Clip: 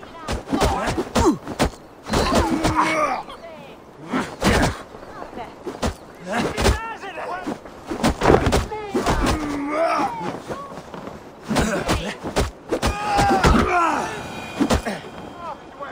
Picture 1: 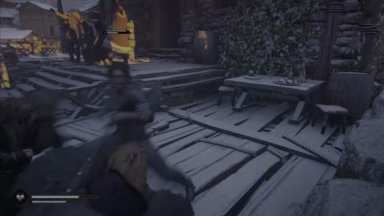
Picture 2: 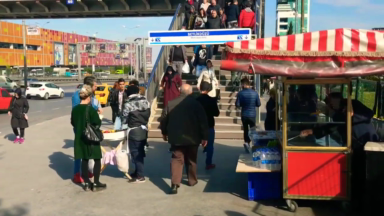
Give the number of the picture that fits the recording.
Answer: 1